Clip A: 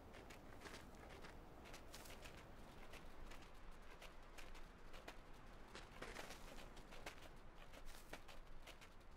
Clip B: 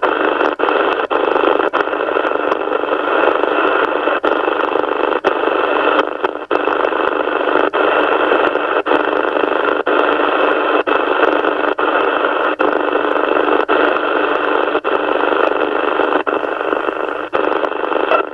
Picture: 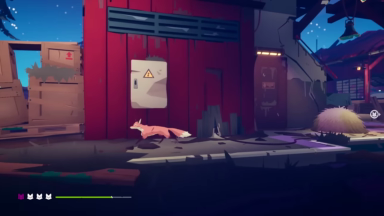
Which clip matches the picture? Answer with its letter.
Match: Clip A